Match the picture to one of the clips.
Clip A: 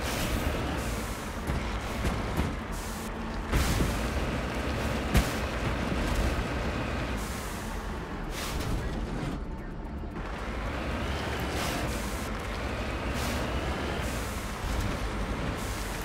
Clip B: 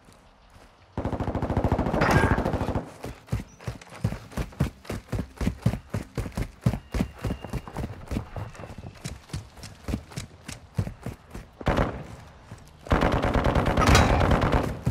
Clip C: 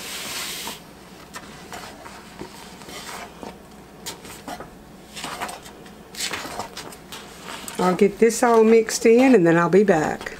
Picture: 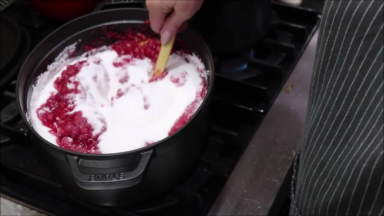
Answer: C